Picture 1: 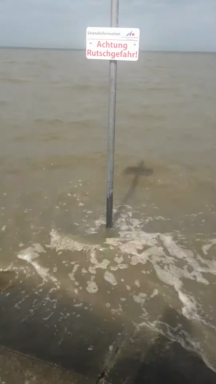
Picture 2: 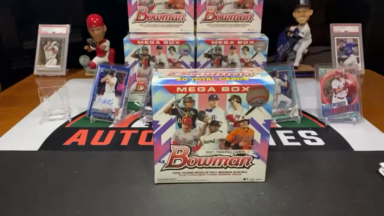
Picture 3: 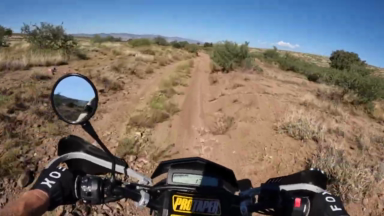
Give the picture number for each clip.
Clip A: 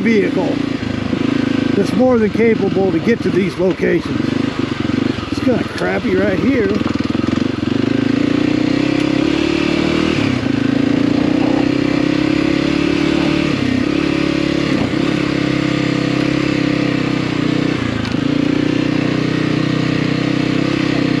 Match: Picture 3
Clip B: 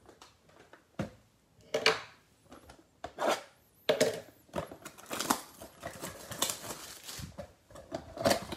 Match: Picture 2